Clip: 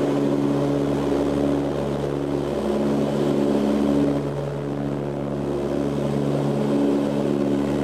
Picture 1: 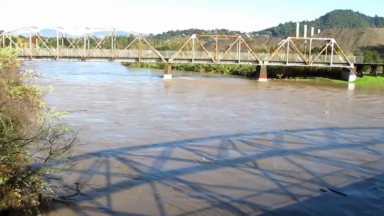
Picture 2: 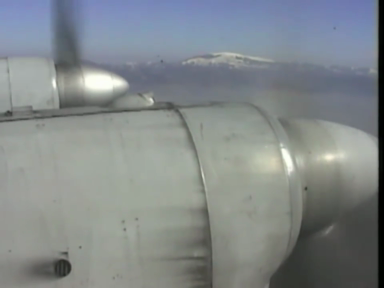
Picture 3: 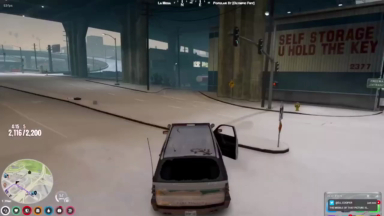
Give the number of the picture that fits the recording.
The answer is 2